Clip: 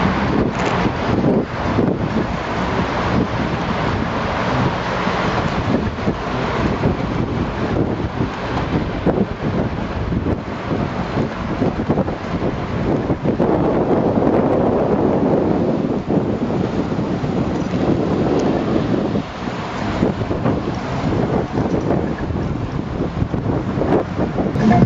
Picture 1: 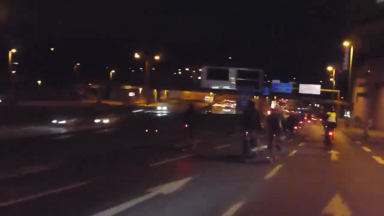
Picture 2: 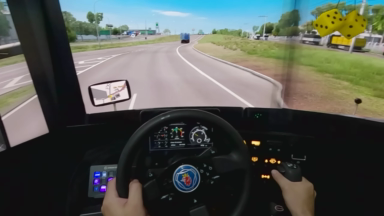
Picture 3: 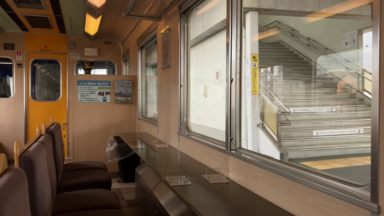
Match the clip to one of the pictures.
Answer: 1